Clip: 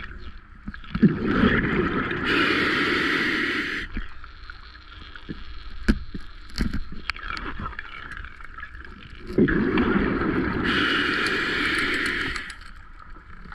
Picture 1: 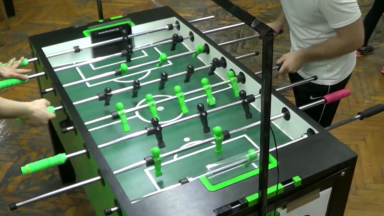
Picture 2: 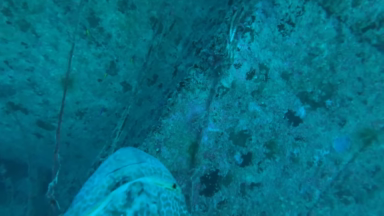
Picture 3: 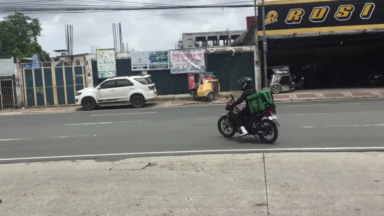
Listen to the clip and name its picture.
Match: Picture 2